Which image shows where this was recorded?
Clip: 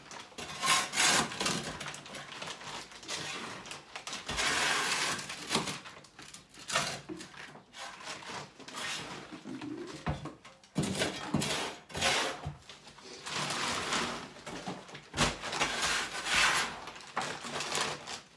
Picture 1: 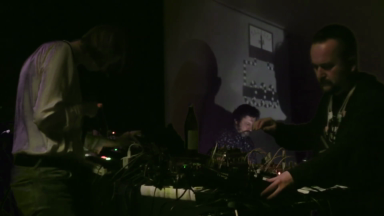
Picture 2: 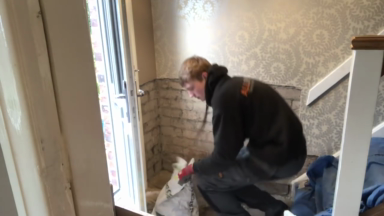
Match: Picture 2